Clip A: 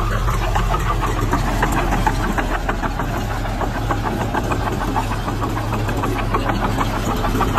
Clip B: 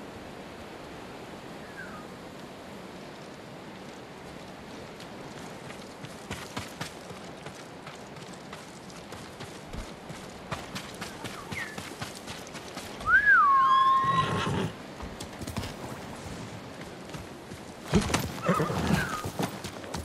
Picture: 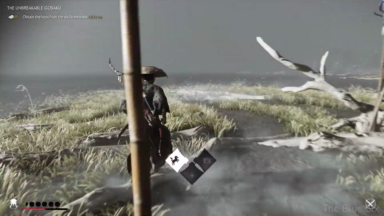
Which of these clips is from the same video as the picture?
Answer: B